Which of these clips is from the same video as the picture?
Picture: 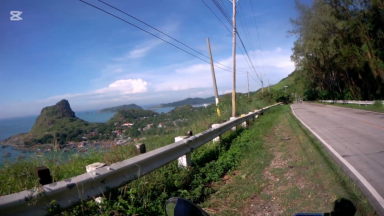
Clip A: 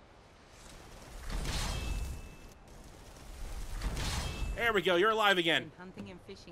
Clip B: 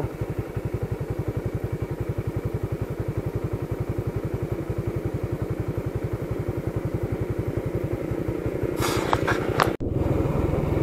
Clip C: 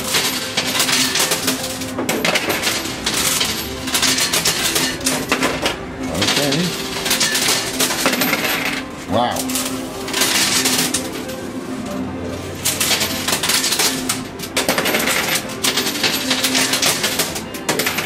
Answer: B